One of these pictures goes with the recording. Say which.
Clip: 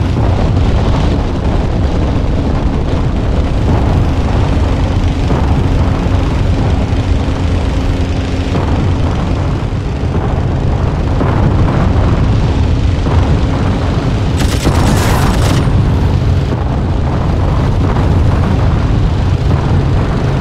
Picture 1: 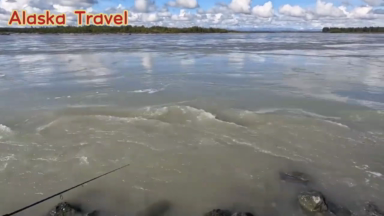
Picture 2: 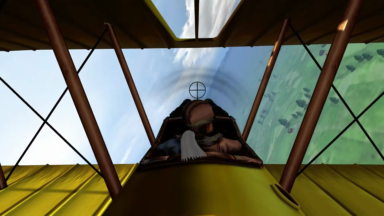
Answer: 2